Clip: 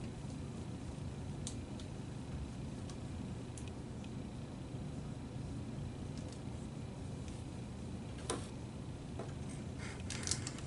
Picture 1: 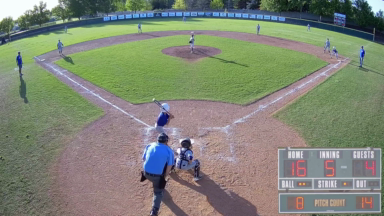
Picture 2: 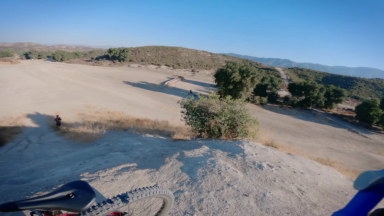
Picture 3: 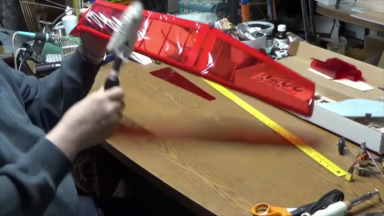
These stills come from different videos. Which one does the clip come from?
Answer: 3